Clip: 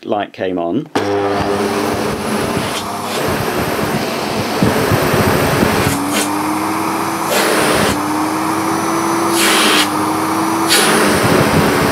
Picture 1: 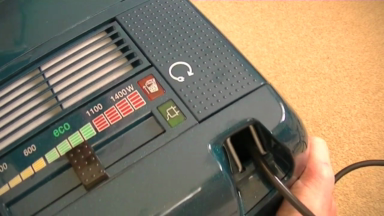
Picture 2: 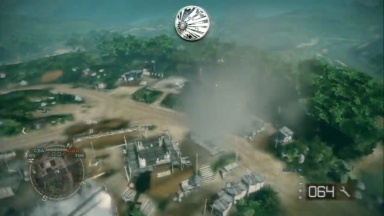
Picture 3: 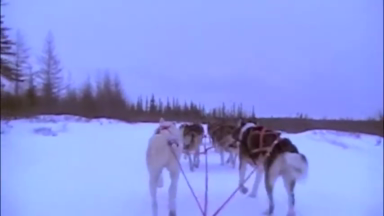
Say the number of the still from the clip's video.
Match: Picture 1